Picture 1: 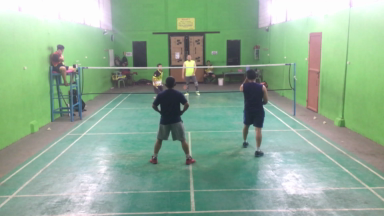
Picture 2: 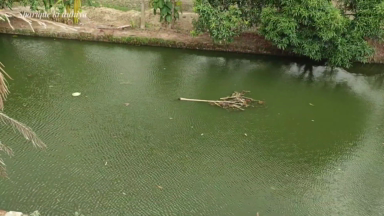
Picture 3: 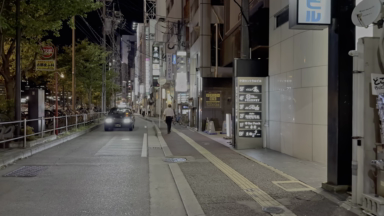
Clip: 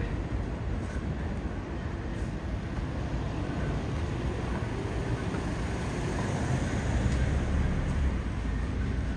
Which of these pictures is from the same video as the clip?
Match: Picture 3